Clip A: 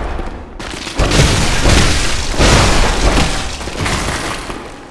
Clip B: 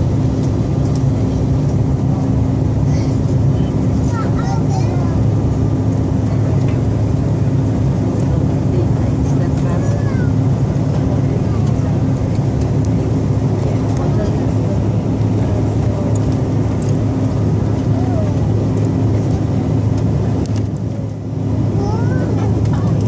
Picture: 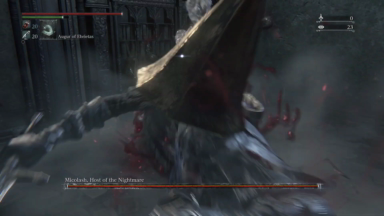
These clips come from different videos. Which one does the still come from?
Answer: A